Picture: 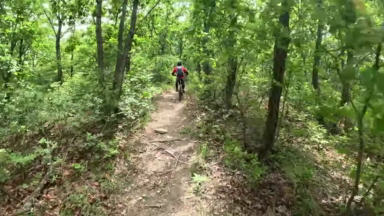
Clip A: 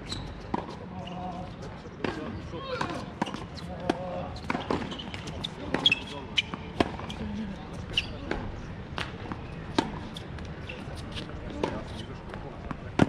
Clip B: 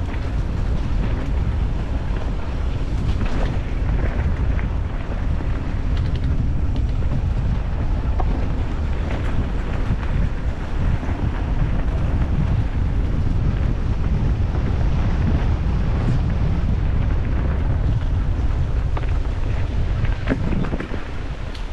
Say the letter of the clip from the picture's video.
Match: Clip B